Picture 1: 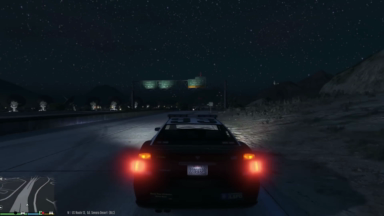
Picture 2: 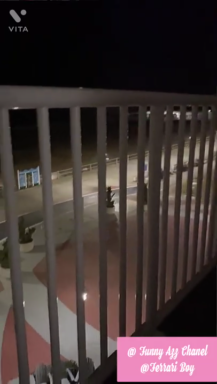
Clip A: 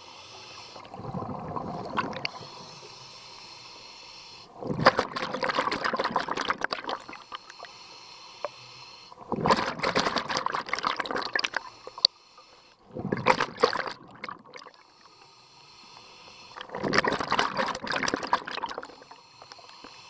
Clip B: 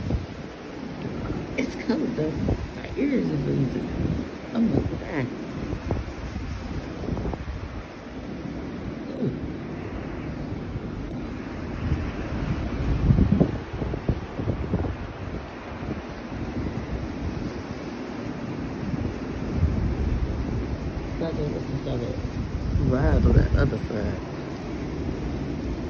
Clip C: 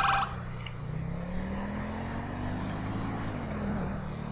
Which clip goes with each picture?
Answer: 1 C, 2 B